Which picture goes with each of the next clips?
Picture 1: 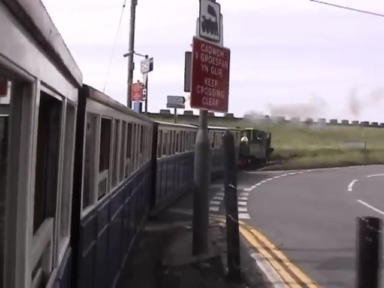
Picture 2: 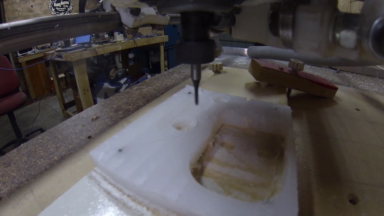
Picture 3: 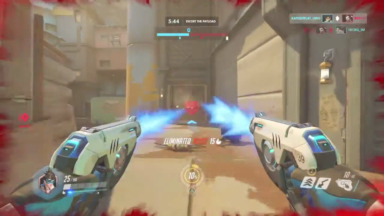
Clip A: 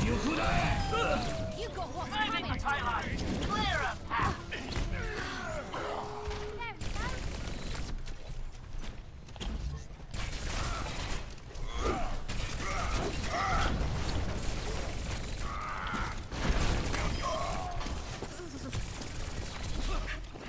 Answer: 3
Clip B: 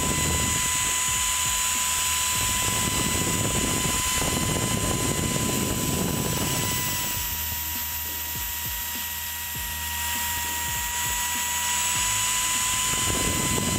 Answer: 2